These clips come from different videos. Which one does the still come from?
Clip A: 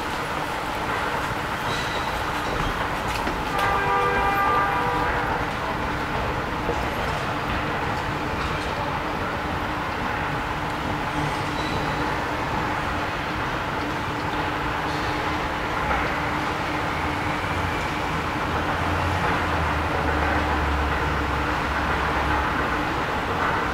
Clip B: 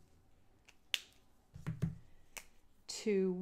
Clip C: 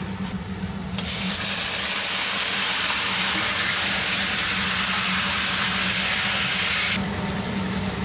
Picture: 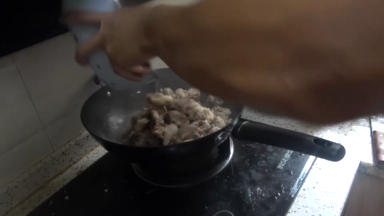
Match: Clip C